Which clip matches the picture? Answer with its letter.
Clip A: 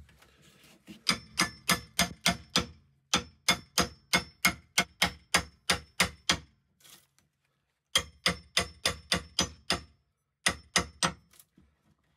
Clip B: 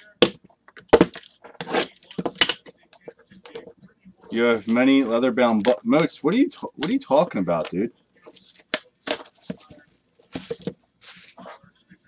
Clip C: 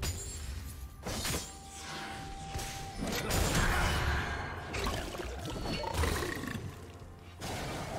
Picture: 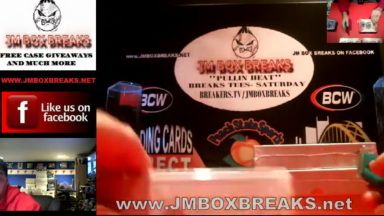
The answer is B